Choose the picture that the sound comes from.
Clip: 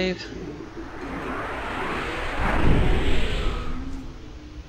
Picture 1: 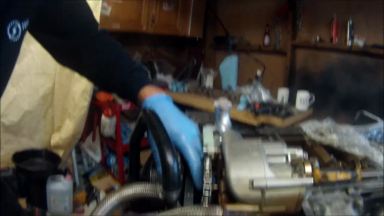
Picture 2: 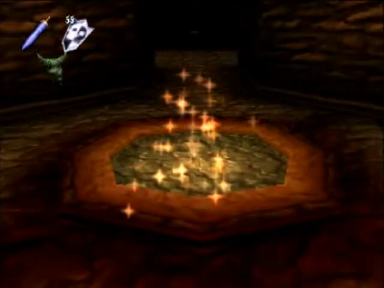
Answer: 2